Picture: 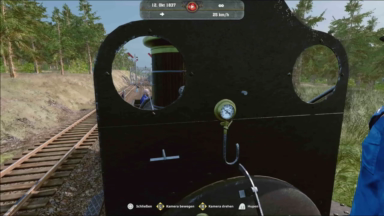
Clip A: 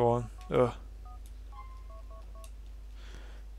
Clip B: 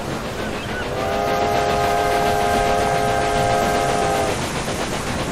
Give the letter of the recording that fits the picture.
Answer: B